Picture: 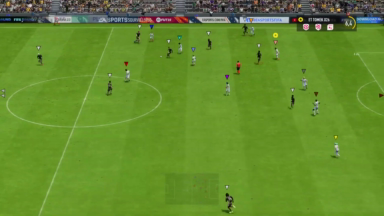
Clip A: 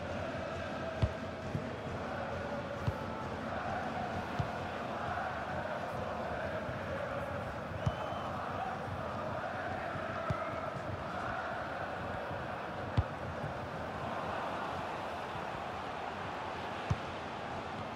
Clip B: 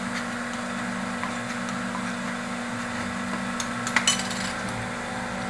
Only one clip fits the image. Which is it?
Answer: A